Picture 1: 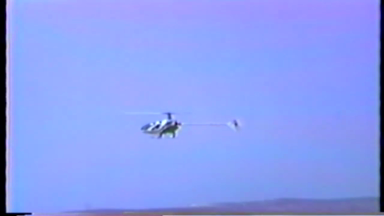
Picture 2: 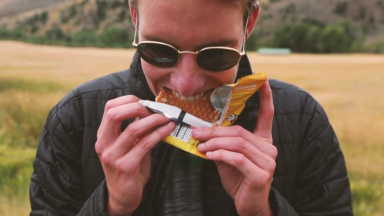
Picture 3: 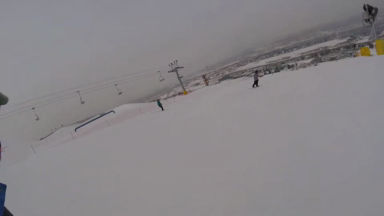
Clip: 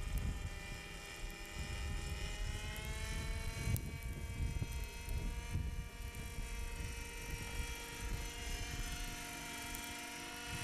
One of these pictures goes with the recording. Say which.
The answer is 1